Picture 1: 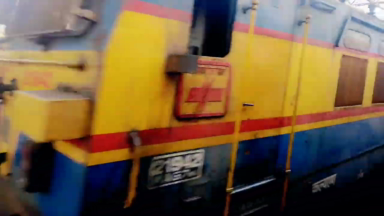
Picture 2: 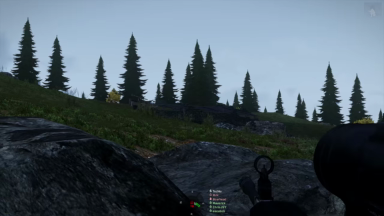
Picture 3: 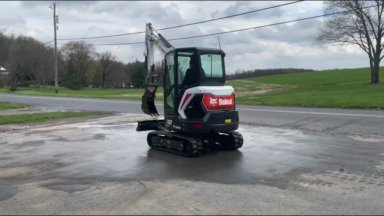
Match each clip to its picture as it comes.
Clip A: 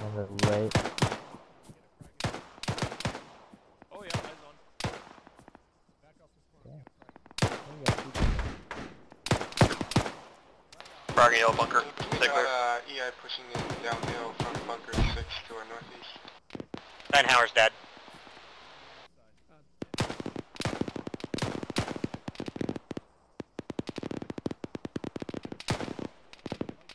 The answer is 2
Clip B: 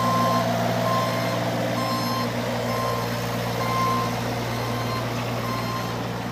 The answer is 3